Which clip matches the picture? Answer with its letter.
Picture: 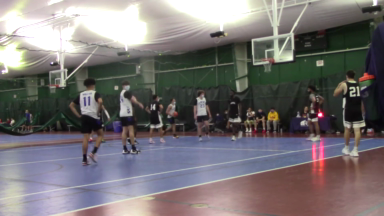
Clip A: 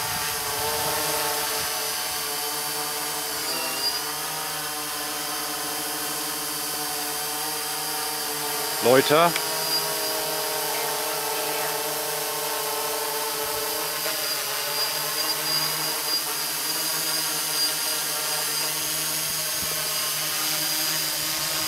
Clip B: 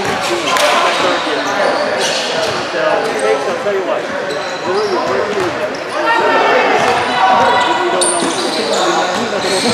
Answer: B